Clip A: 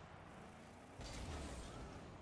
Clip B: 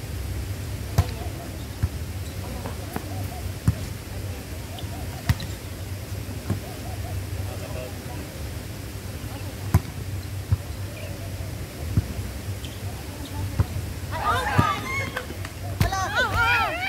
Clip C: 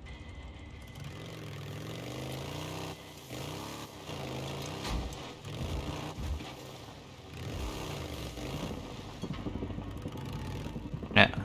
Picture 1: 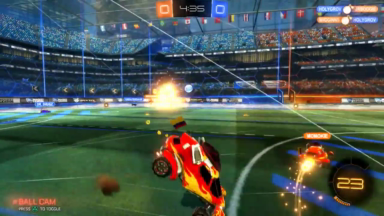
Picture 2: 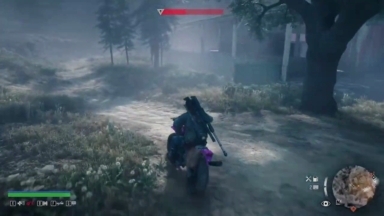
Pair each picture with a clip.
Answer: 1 A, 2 C